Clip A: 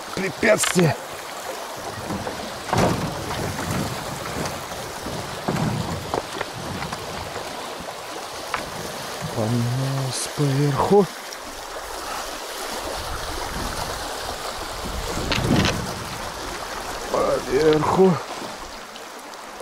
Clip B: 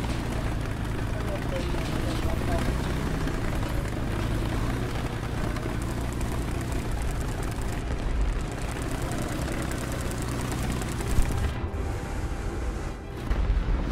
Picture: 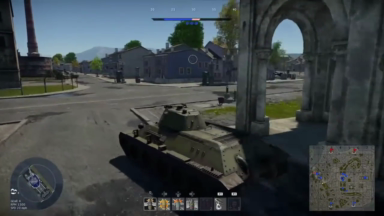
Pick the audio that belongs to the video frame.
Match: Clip B